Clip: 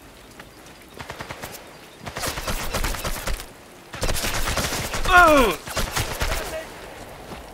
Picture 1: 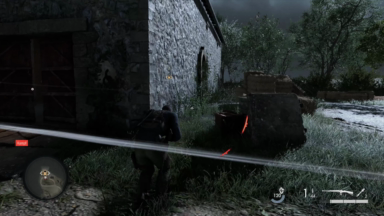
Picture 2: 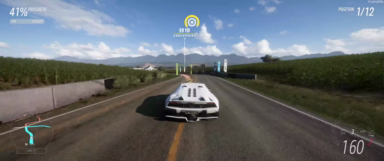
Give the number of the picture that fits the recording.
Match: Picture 1